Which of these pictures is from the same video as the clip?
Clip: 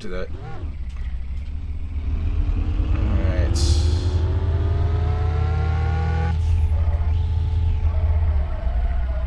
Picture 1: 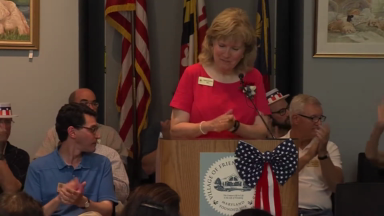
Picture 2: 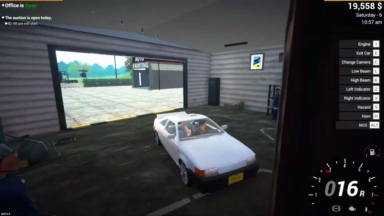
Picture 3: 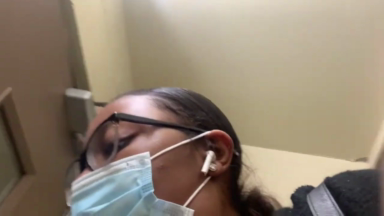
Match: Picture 2